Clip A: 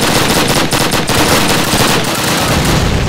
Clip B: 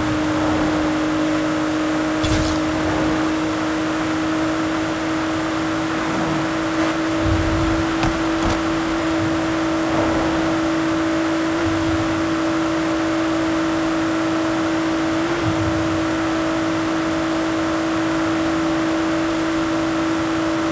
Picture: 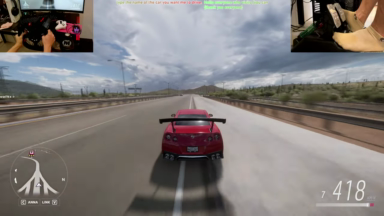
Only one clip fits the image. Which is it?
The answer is B